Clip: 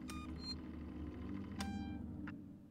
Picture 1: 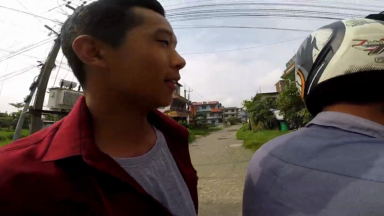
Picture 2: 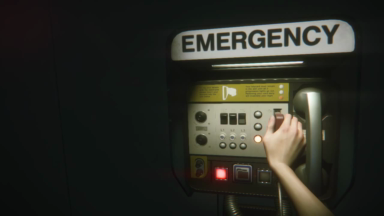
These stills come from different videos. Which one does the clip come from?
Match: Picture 2